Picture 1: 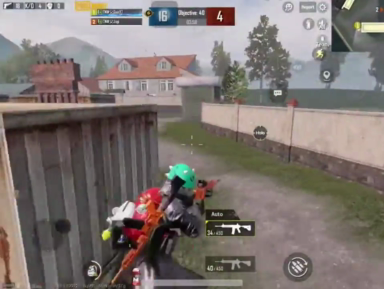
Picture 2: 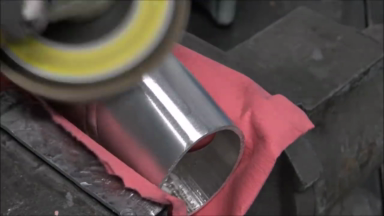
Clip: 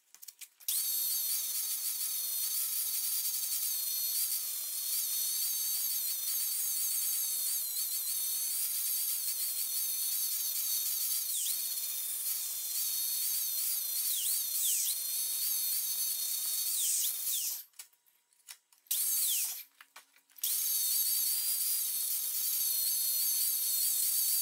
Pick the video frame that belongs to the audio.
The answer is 2